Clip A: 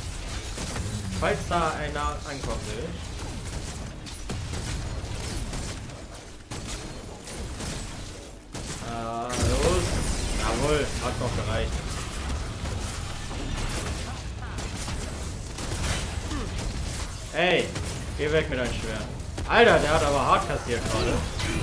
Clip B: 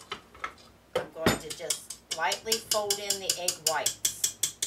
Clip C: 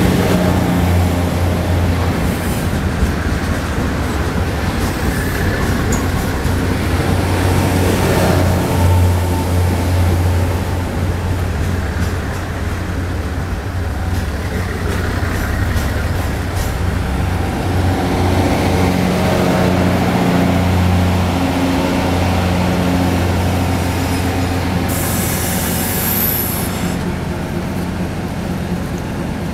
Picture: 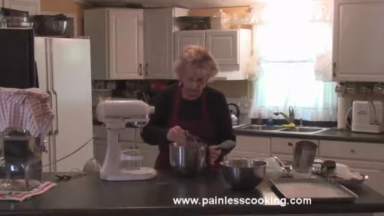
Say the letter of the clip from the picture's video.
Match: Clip B